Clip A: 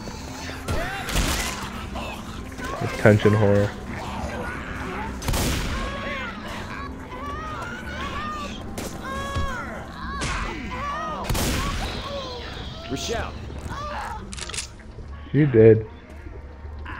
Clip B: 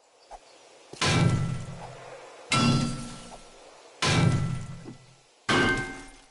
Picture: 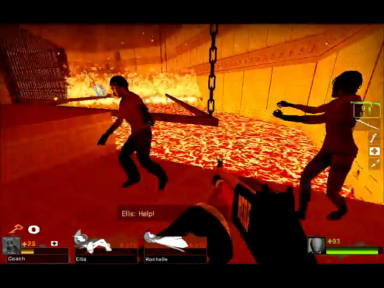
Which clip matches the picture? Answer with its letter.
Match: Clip A